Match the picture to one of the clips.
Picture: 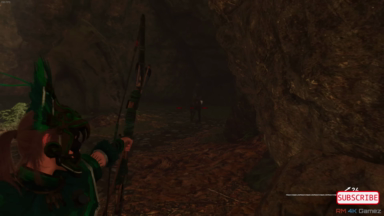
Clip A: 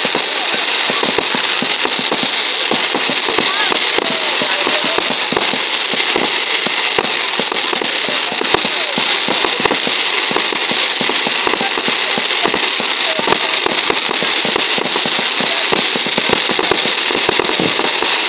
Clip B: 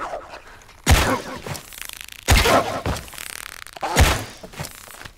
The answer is B